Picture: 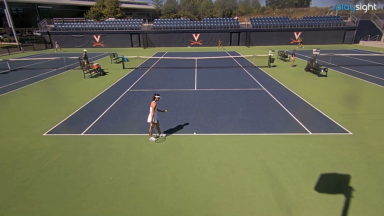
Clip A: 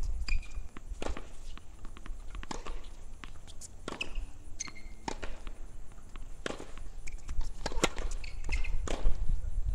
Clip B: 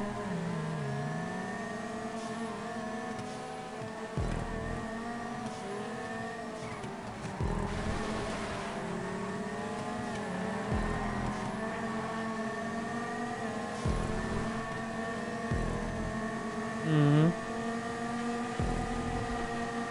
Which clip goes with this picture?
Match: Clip A